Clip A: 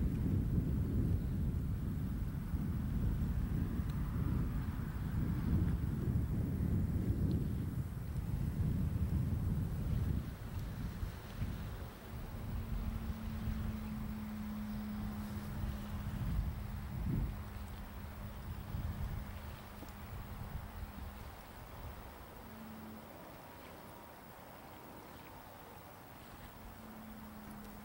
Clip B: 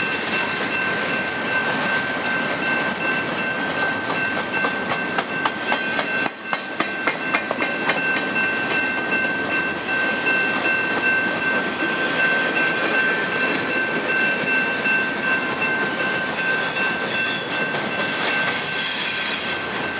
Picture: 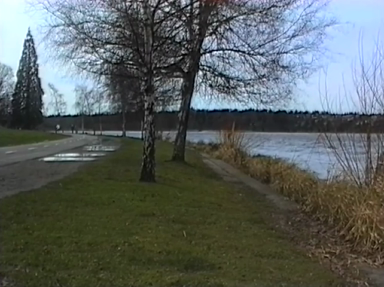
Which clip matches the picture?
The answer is A